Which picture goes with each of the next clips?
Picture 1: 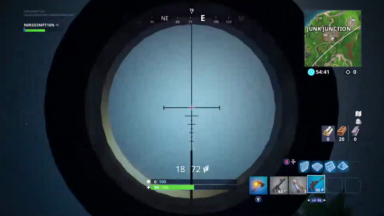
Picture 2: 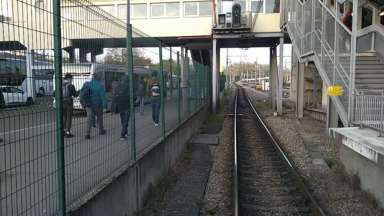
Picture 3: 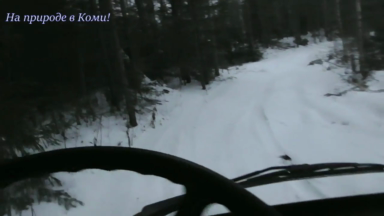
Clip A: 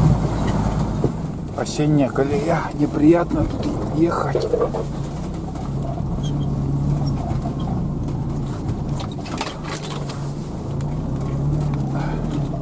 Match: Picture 3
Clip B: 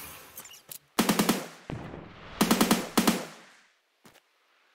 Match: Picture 1